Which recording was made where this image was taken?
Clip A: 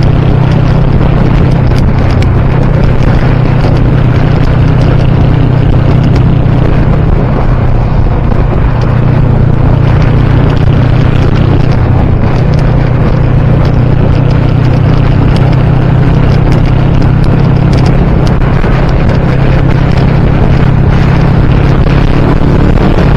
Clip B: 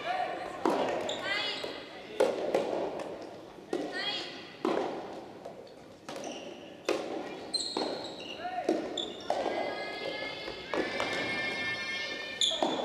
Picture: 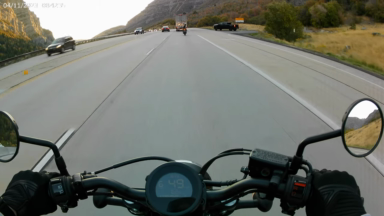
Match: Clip A